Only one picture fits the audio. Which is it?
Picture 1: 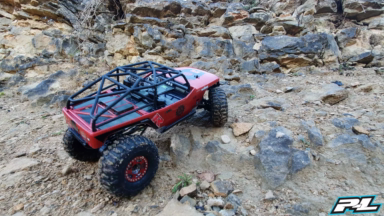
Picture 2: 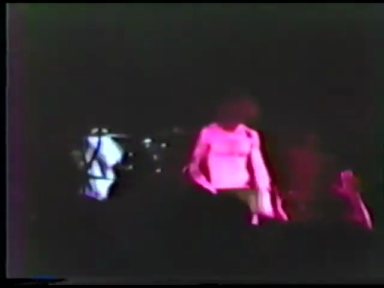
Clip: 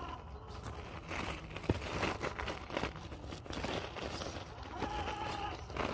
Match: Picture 1